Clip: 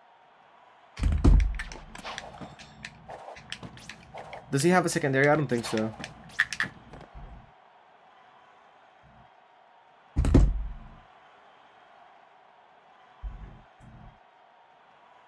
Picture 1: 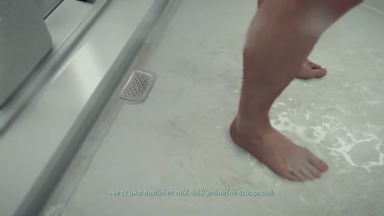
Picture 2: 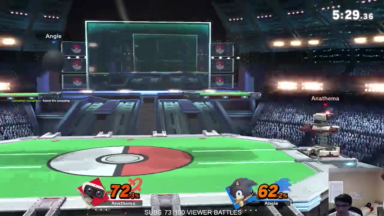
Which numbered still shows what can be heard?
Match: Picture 2